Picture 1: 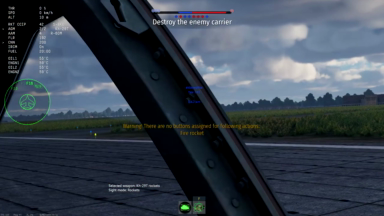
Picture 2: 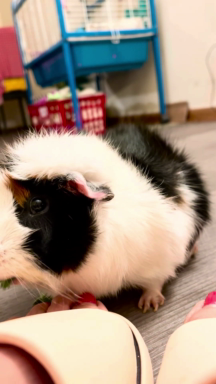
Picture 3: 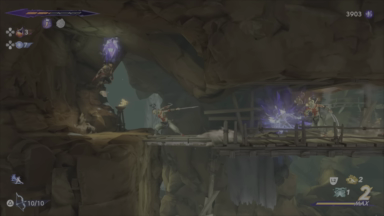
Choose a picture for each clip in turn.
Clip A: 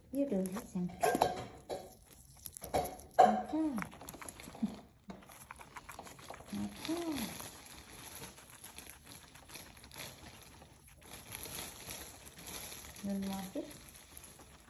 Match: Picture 2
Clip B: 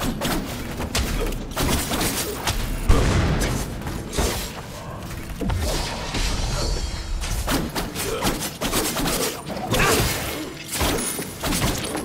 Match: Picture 3